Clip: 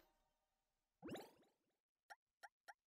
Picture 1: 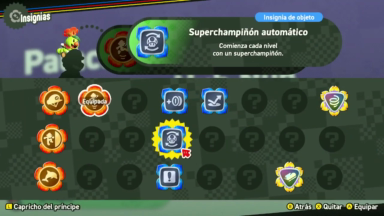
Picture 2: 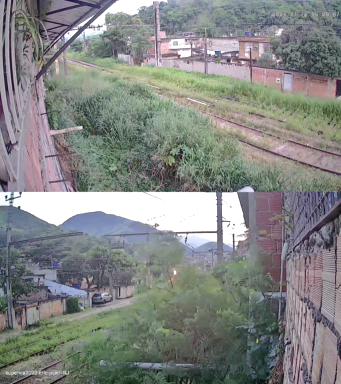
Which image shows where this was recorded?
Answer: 1